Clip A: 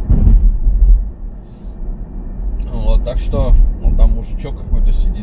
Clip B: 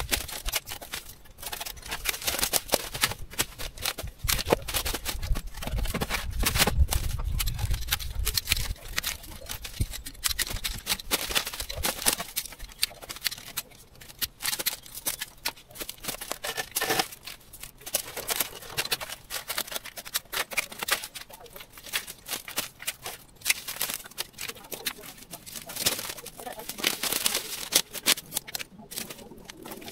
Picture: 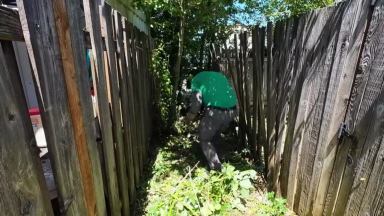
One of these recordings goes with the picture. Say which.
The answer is B